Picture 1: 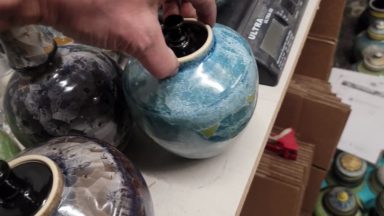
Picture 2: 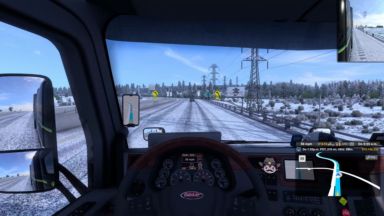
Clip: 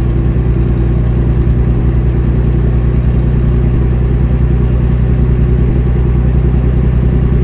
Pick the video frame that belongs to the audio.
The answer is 2